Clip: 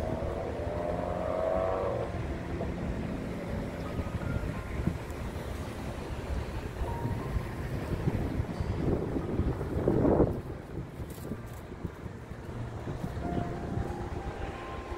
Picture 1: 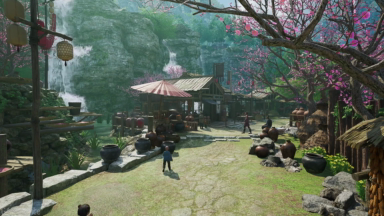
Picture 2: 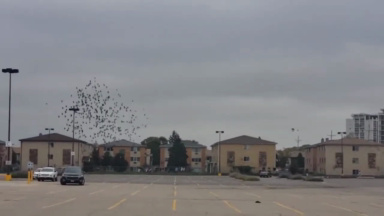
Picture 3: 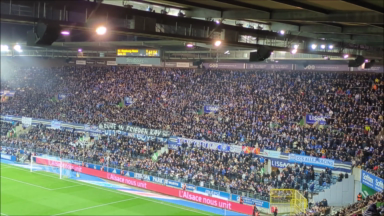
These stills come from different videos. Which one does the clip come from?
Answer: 2